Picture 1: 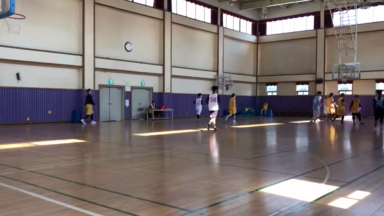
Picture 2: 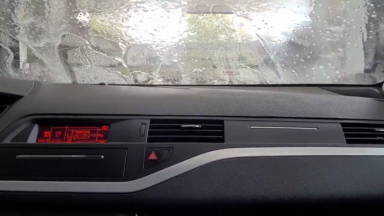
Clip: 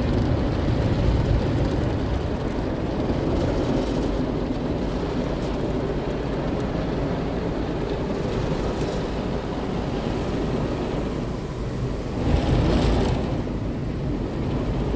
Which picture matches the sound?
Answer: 2